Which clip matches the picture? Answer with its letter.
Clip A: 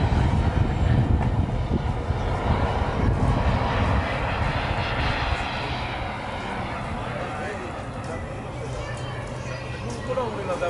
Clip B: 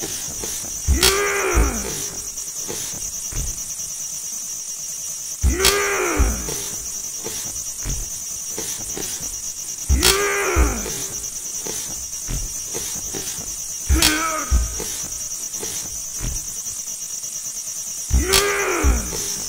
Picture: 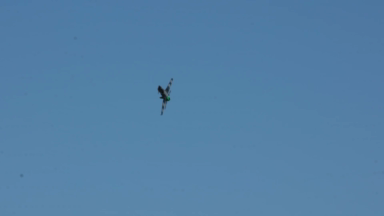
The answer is A